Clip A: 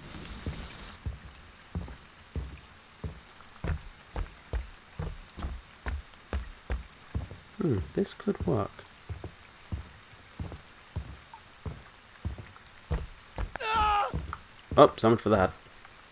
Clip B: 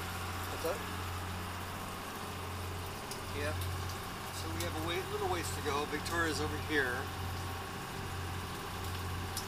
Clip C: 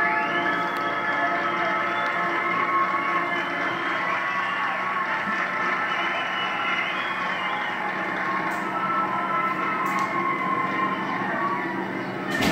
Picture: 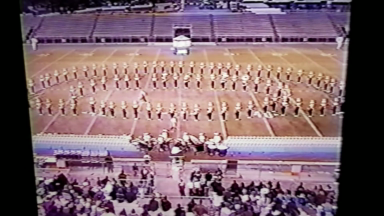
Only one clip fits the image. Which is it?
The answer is C